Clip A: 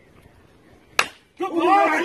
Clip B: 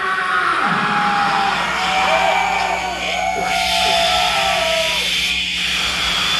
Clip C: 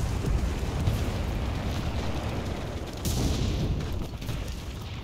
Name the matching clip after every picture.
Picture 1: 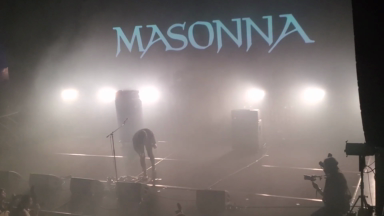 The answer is B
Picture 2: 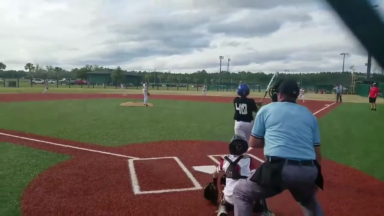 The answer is A